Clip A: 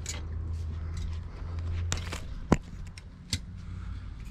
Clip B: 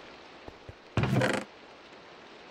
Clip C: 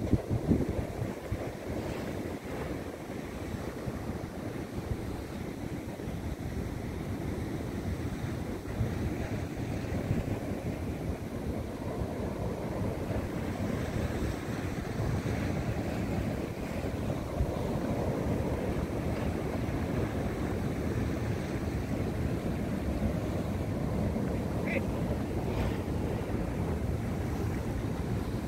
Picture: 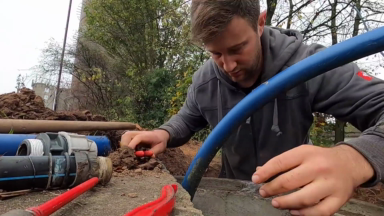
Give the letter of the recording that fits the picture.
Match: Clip A